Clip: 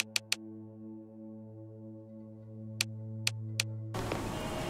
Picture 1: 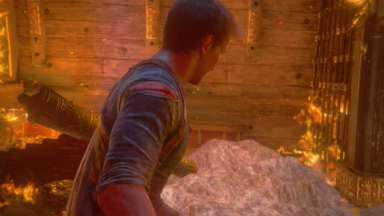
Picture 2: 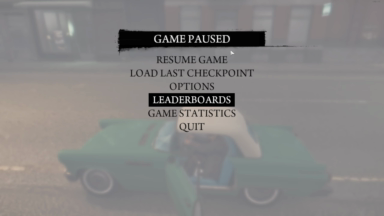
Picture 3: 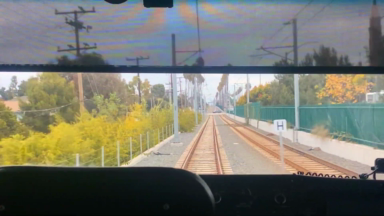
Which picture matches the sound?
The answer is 2